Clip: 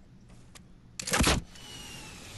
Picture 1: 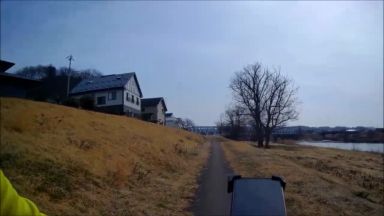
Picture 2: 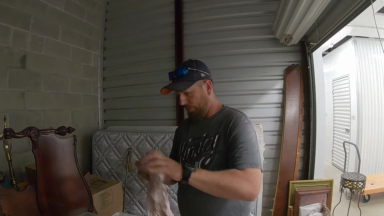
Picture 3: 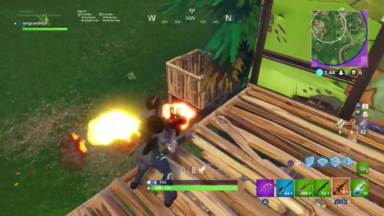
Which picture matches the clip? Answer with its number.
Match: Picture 3